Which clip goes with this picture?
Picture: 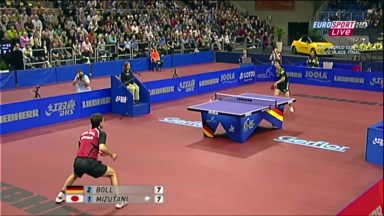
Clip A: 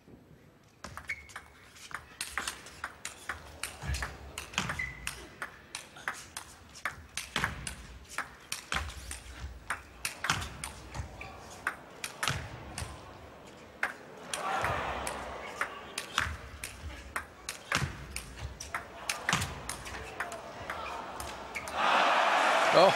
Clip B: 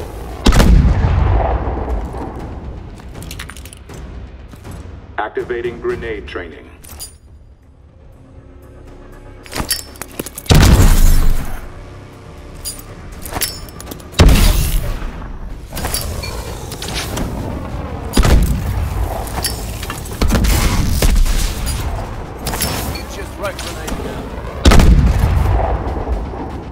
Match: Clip A